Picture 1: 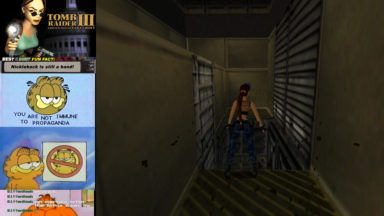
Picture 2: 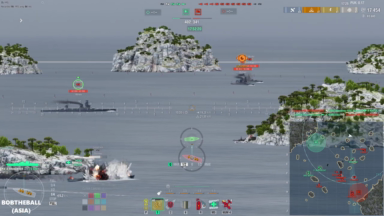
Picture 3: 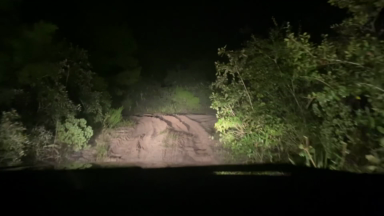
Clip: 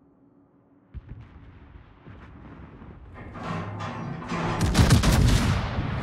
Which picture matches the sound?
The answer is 2